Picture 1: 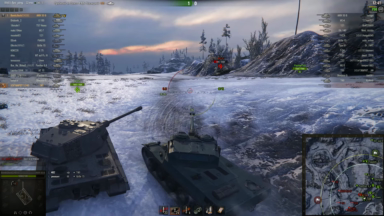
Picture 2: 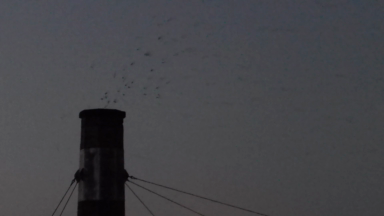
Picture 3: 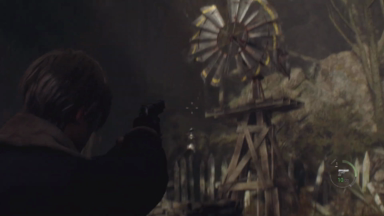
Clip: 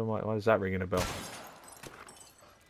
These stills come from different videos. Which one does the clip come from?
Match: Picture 3